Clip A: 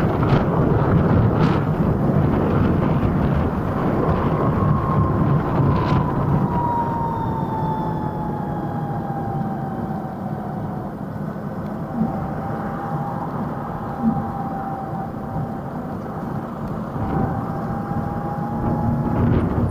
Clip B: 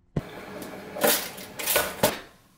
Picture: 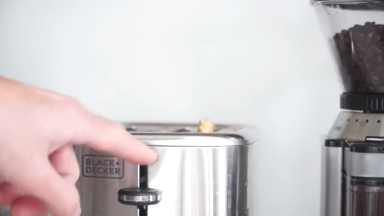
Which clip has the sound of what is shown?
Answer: B